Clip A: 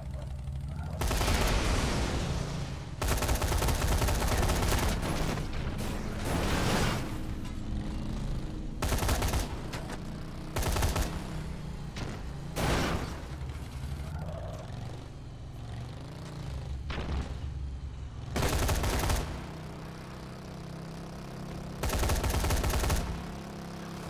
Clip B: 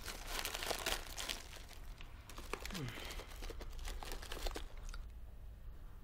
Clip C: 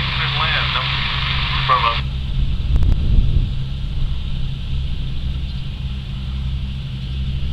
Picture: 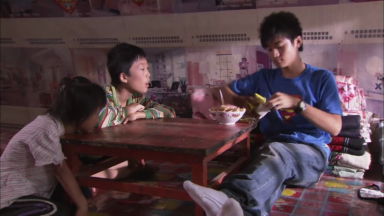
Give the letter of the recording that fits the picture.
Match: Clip B